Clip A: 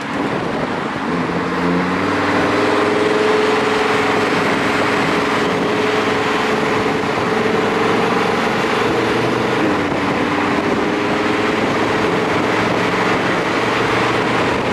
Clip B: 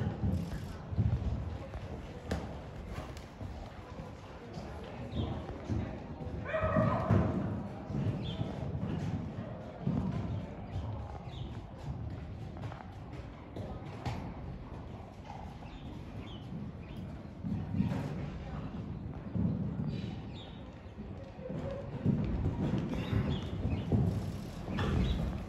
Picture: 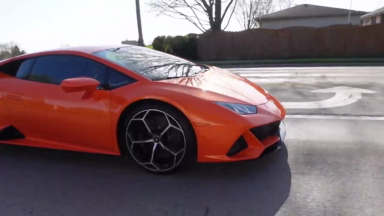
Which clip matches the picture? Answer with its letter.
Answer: A